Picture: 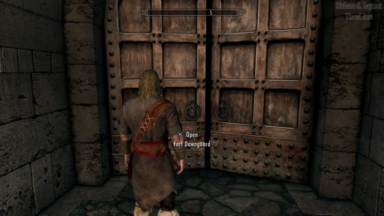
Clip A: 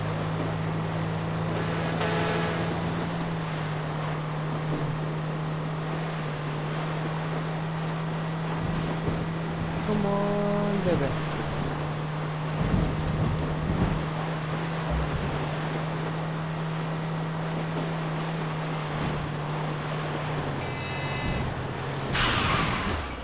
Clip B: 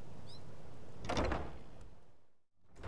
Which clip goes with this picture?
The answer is B